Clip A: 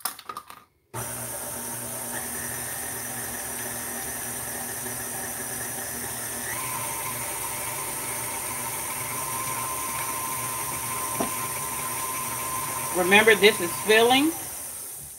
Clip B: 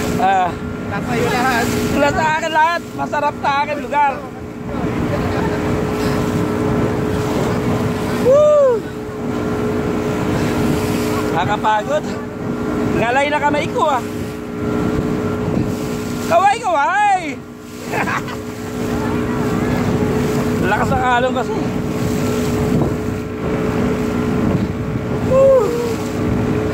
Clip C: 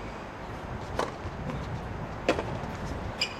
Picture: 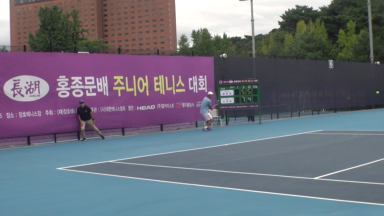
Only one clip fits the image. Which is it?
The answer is C